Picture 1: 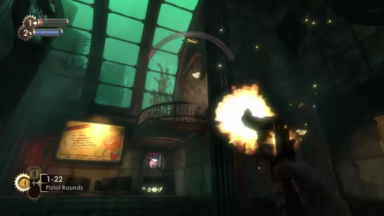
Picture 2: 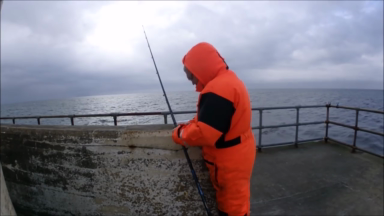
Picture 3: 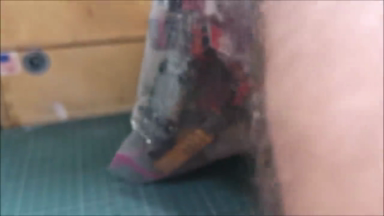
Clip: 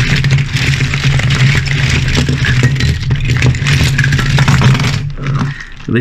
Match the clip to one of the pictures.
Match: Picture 3